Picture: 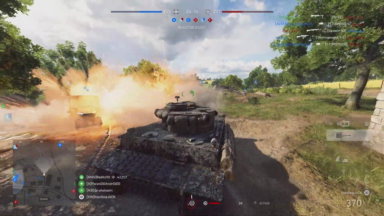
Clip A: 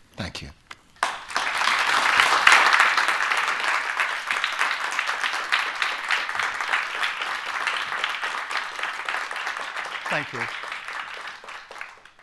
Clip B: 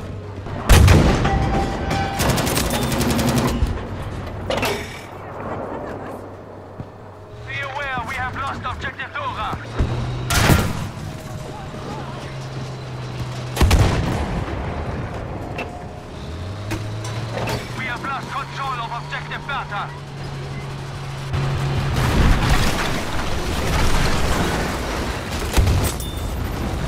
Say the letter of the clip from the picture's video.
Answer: B